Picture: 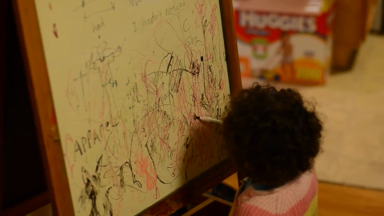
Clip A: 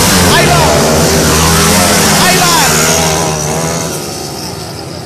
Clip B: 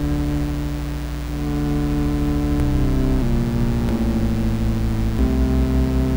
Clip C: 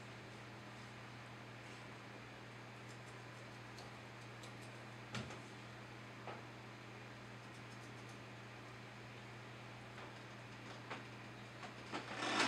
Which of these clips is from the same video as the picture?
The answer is C